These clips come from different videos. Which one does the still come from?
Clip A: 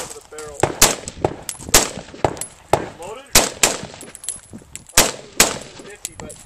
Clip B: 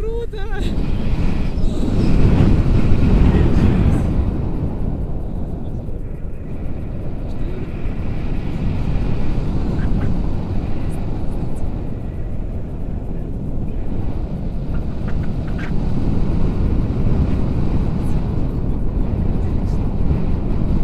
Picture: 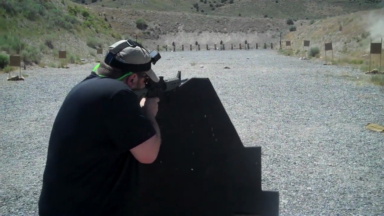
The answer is A